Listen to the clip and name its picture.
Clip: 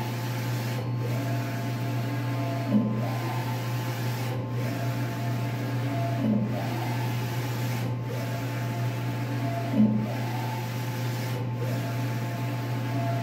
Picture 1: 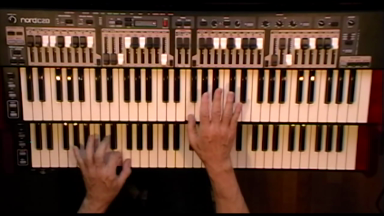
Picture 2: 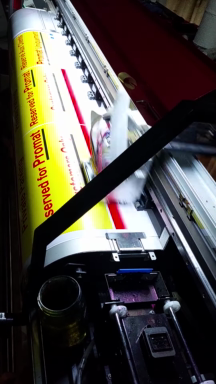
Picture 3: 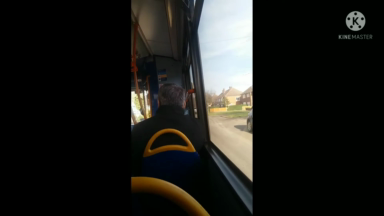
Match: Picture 2